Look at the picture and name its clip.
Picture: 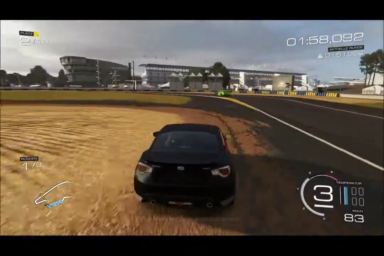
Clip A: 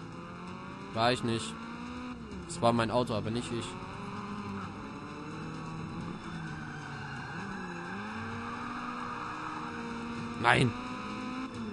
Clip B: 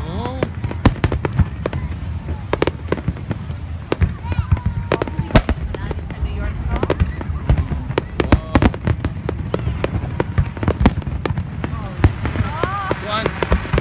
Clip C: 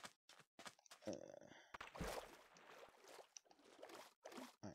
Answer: A